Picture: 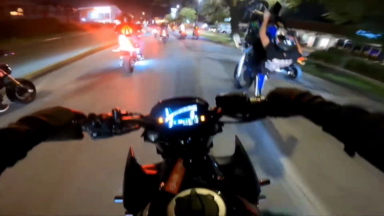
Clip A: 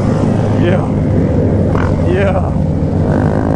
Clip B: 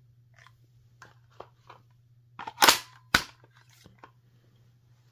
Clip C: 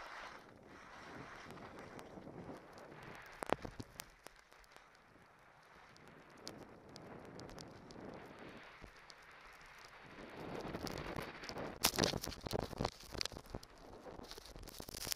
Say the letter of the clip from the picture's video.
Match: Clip A